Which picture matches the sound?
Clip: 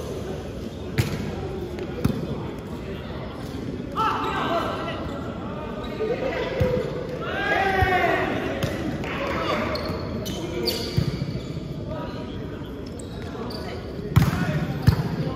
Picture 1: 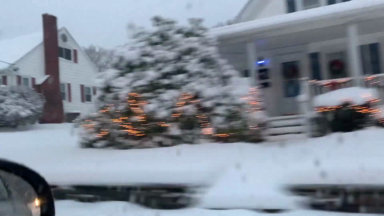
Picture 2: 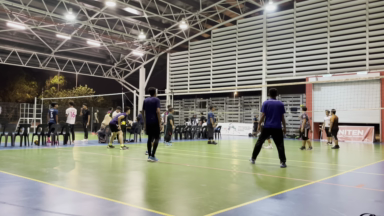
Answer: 2